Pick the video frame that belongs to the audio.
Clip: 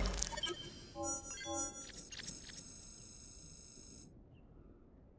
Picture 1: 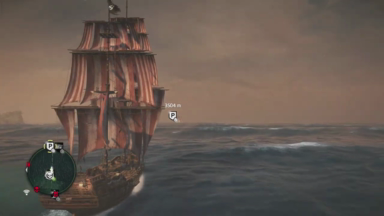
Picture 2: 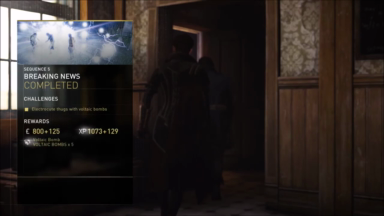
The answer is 2